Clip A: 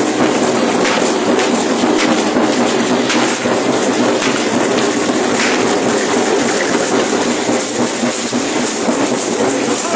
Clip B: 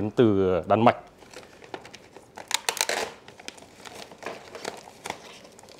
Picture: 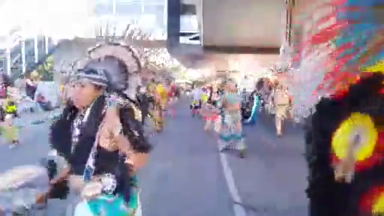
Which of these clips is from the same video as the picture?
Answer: A